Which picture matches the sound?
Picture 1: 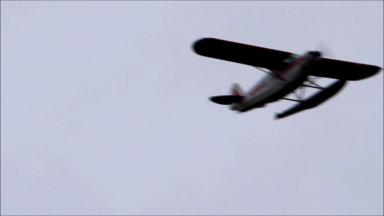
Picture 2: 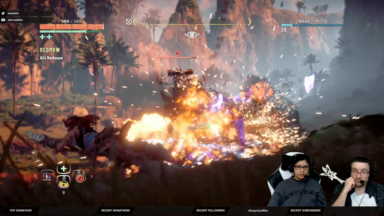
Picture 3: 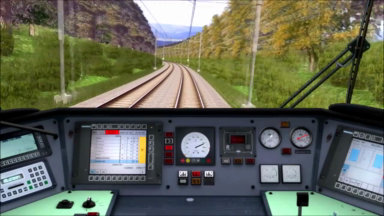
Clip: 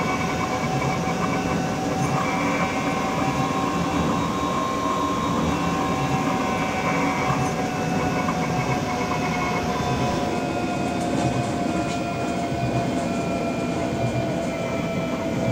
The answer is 3